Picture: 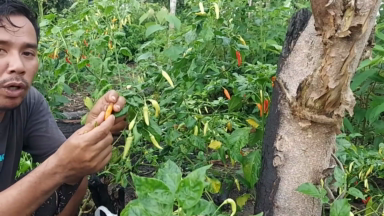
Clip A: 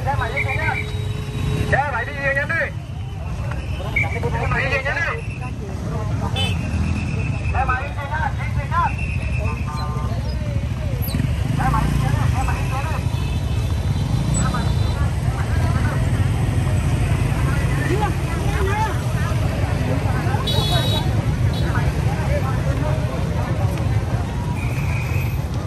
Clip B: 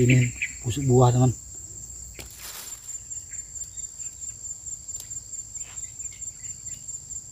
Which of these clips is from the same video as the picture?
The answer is B